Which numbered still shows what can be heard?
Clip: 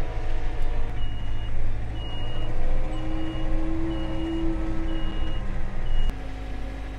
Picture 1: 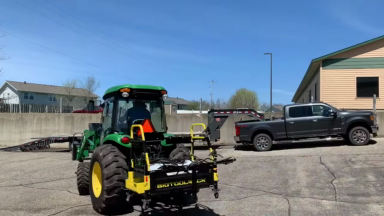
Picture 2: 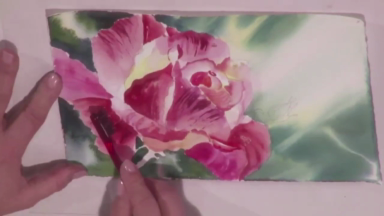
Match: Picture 1